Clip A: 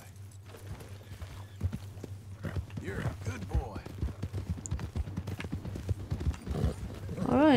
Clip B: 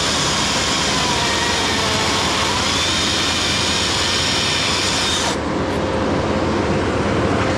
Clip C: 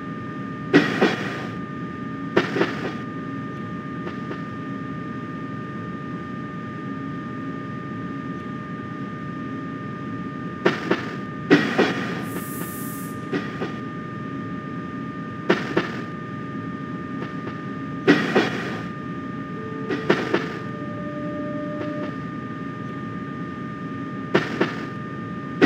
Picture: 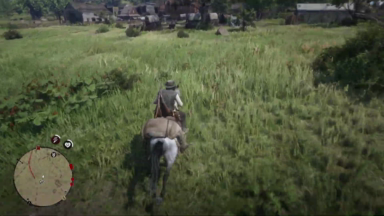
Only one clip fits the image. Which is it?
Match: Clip A